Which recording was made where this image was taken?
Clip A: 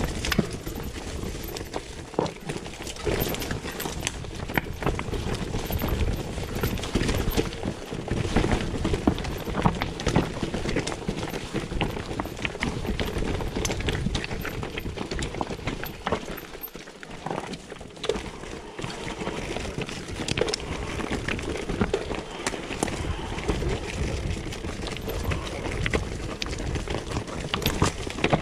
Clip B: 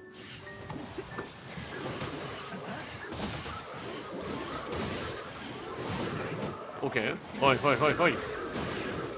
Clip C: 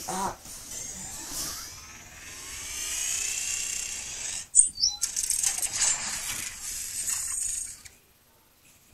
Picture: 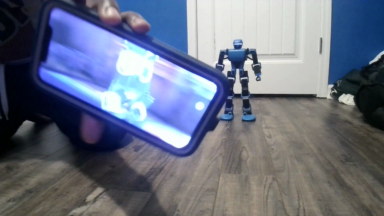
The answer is C